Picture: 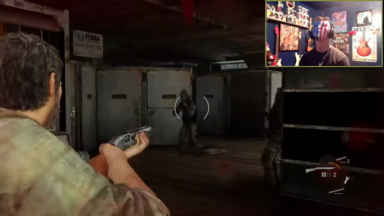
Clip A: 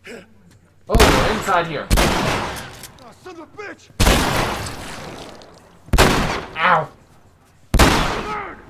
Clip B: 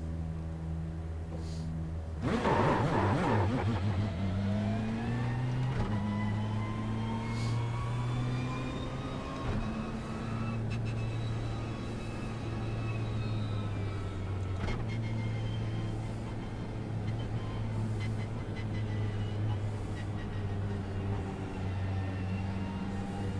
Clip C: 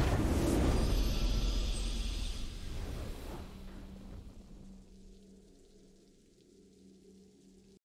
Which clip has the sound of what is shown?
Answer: A